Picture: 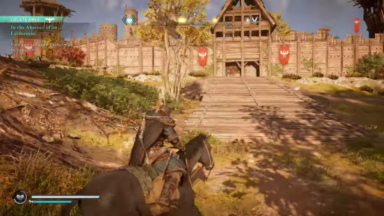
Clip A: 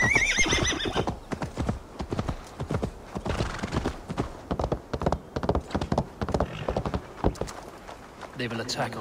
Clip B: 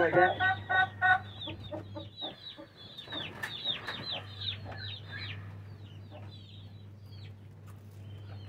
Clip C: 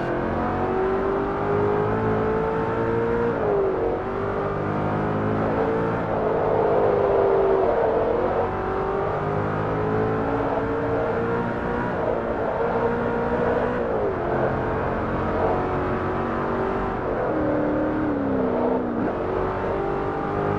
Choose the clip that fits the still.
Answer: A